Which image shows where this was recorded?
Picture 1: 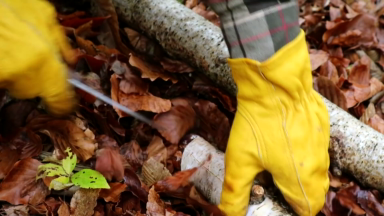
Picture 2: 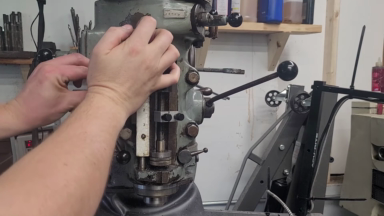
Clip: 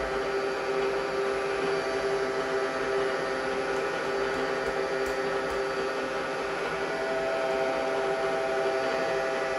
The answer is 2